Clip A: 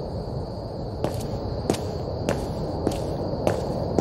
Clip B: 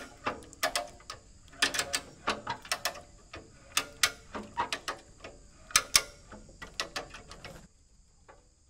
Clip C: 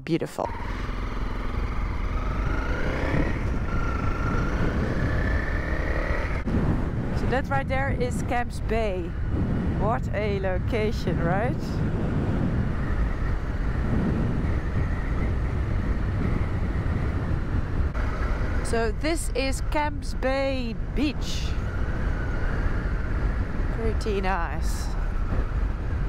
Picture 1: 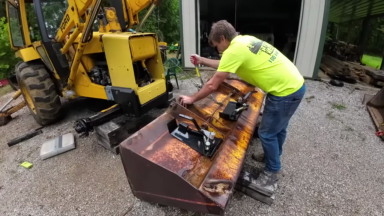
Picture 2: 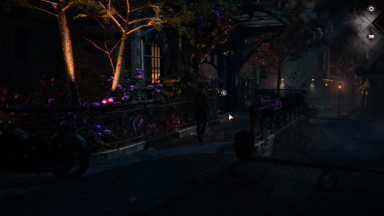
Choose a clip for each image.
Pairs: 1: B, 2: A